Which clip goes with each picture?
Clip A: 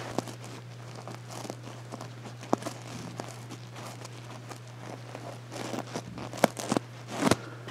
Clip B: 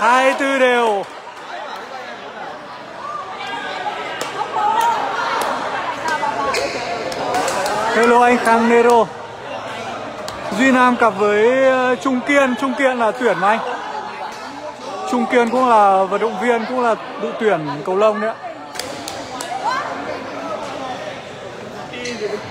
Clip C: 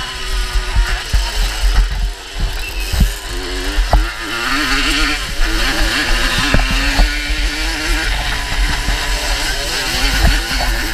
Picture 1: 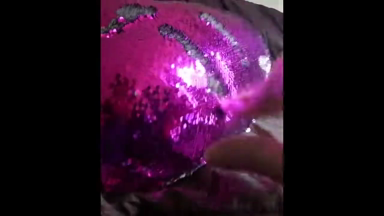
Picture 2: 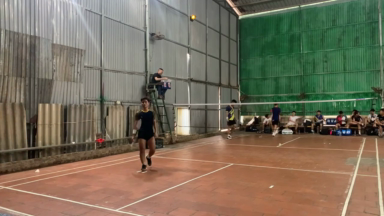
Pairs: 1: A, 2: B